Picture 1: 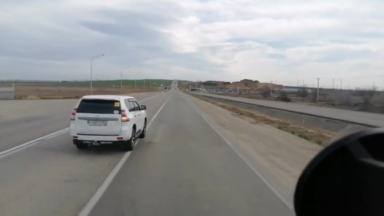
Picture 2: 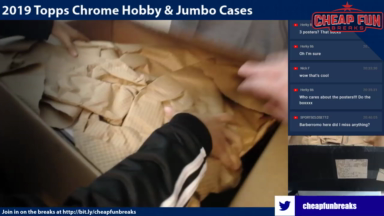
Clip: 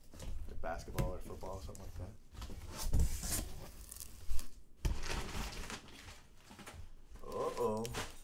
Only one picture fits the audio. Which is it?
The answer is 2